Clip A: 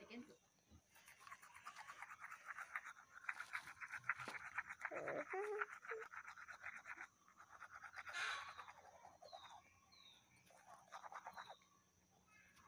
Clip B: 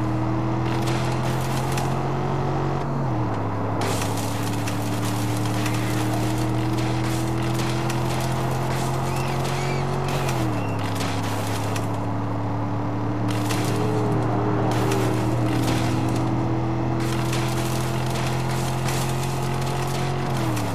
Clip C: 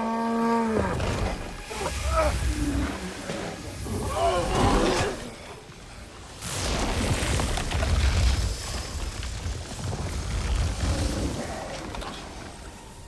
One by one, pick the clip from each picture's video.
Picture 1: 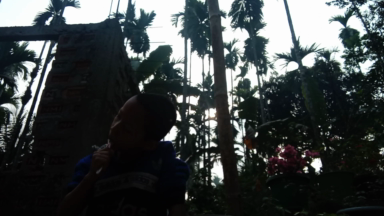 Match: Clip A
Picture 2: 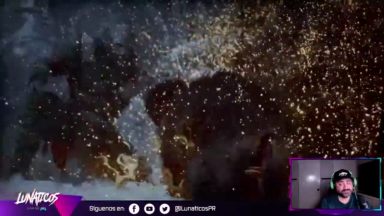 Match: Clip C